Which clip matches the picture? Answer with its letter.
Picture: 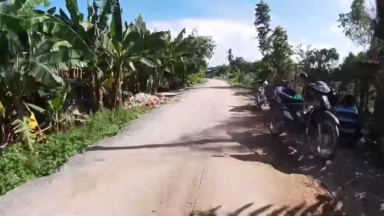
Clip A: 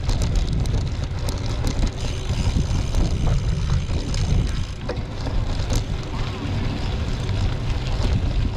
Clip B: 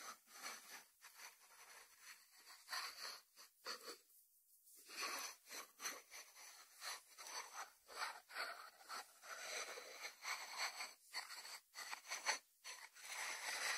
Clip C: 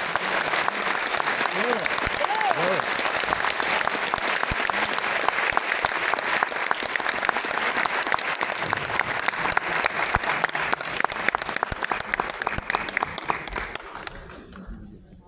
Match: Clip A